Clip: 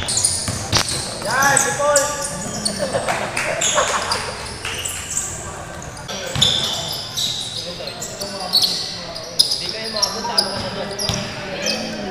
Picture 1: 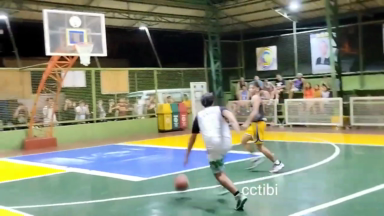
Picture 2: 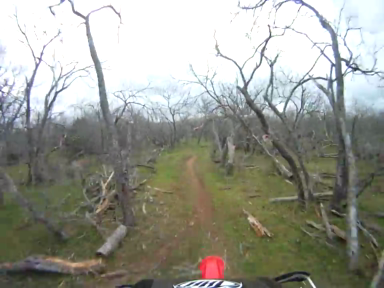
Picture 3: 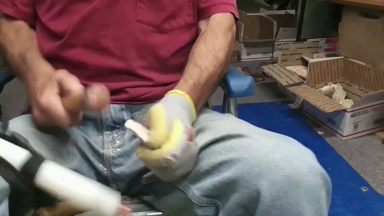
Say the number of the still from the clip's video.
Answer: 1